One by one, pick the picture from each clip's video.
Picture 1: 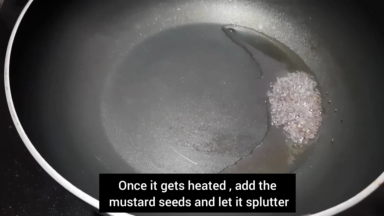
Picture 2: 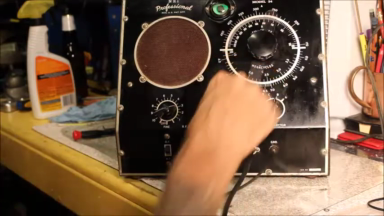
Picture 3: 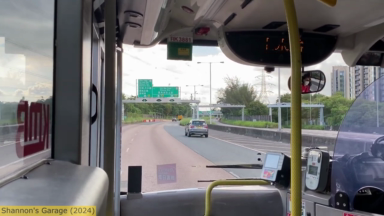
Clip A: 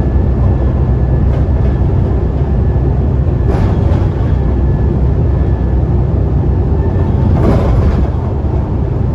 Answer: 3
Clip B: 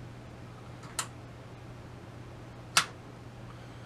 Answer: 2